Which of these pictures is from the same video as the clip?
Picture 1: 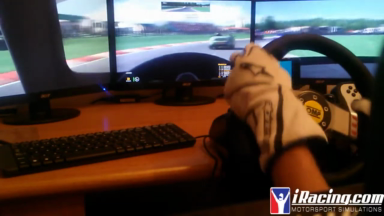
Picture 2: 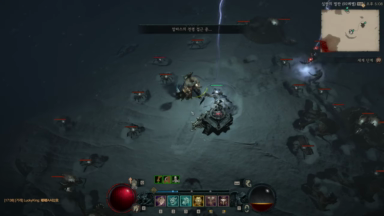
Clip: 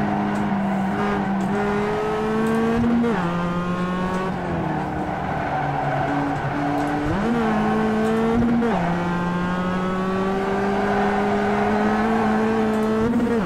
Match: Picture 1